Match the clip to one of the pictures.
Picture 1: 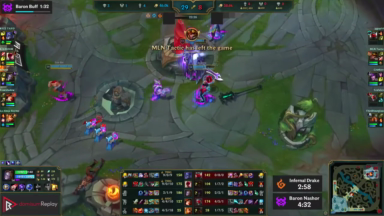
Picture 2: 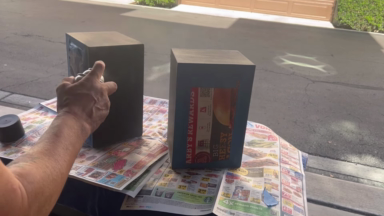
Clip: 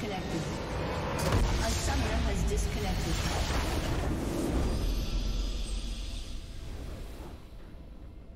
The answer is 1